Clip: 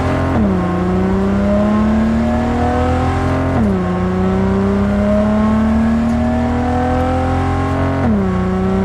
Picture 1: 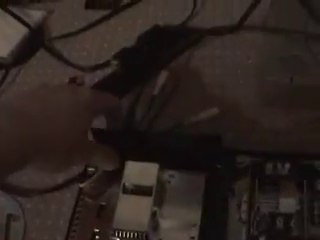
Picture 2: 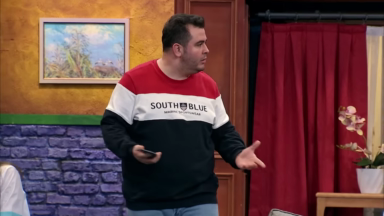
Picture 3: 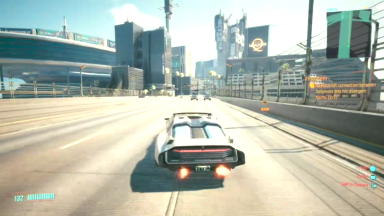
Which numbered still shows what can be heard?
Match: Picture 3